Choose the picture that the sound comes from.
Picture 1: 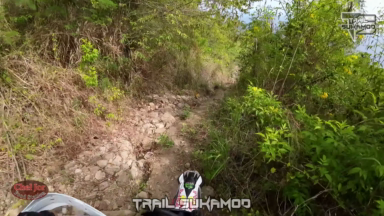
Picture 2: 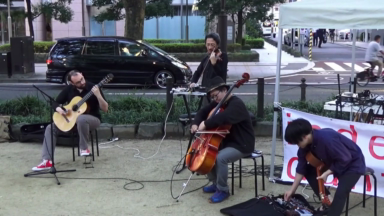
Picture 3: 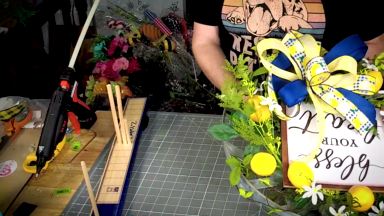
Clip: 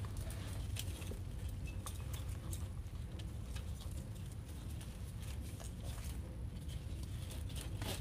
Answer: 3